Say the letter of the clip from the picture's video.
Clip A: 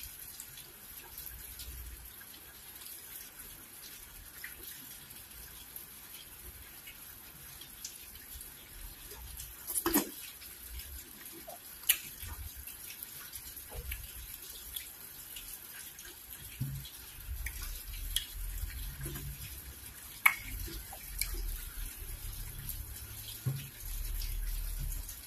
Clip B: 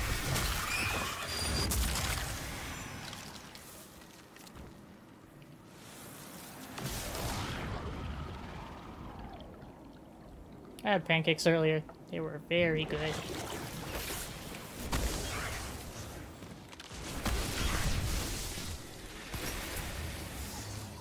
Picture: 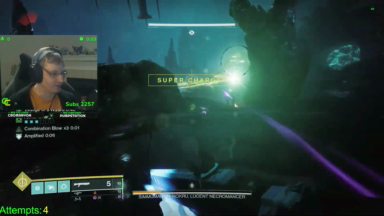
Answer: B